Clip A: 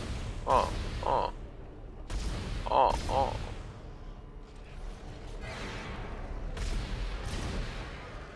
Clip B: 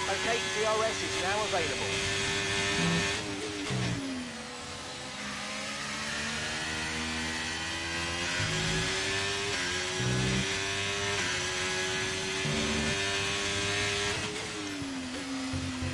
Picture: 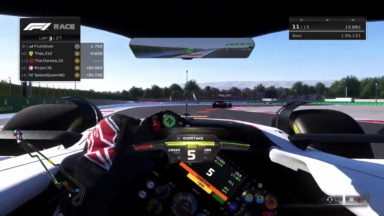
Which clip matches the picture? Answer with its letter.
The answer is B